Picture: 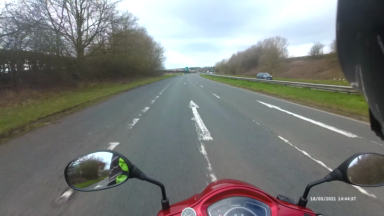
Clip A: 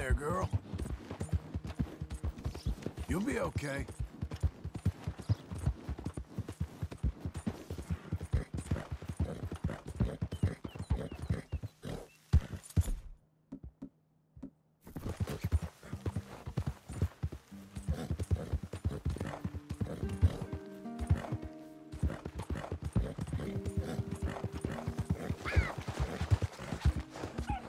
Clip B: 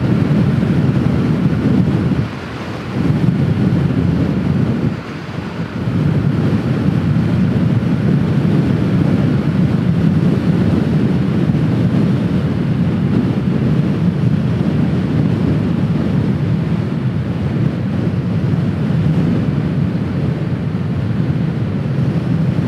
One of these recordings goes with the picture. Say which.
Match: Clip B